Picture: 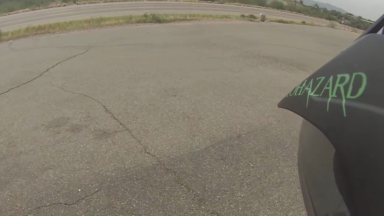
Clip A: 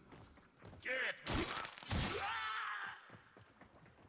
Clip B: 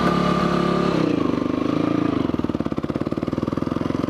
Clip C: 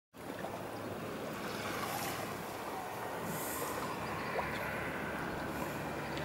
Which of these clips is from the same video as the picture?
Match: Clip B